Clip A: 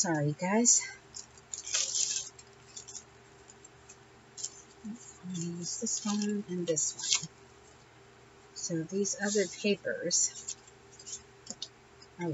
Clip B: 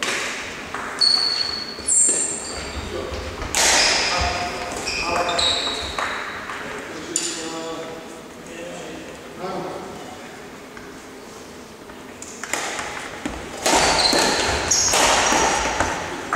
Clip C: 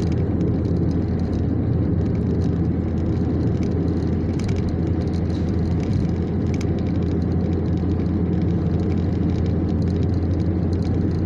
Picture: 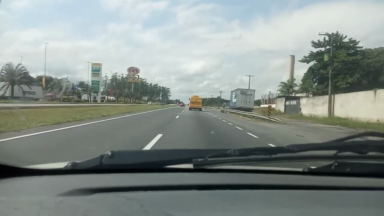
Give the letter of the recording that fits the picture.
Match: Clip C